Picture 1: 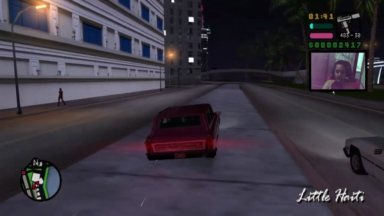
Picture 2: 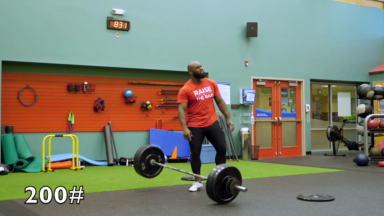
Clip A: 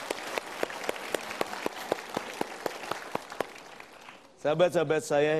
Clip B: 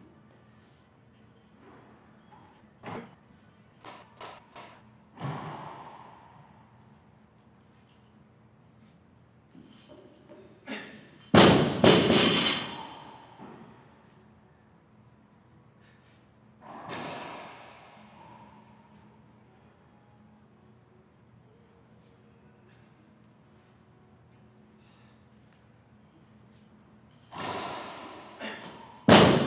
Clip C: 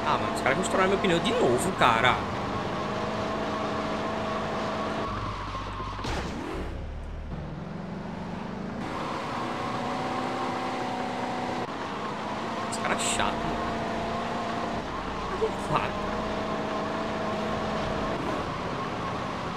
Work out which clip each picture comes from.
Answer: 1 C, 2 B